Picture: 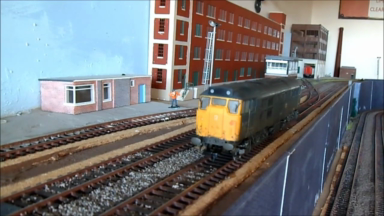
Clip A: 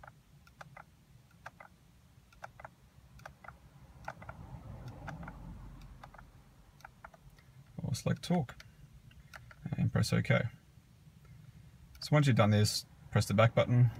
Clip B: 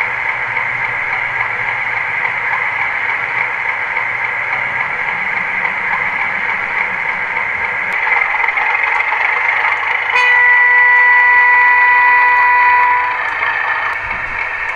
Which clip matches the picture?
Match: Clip B